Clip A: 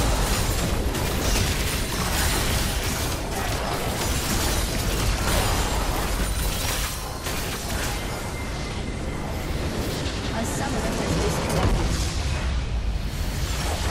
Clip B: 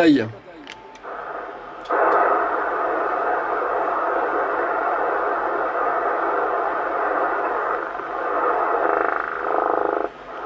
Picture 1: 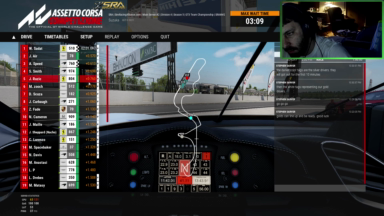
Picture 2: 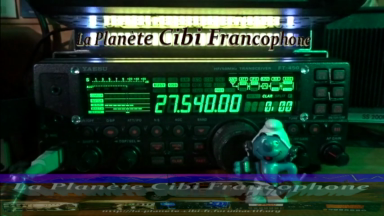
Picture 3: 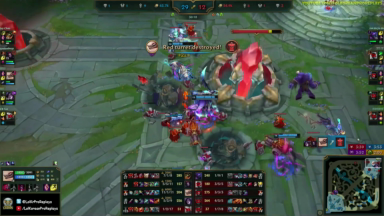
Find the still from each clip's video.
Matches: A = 3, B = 2